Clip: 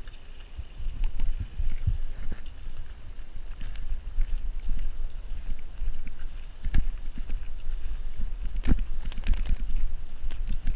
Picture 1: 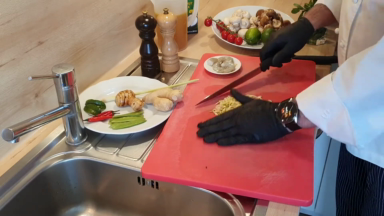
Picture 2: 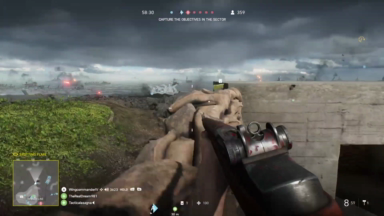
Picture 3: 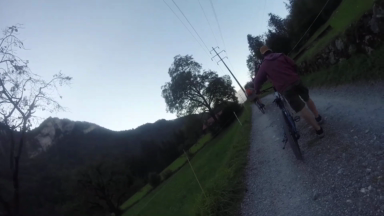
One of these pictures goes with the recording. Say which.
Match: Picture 3